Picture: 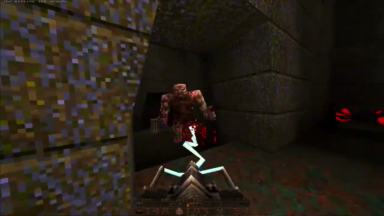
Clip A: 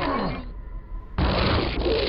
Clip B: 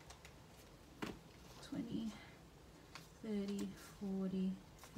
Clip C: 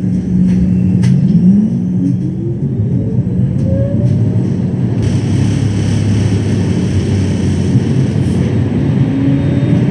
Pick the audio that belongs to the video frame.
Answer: A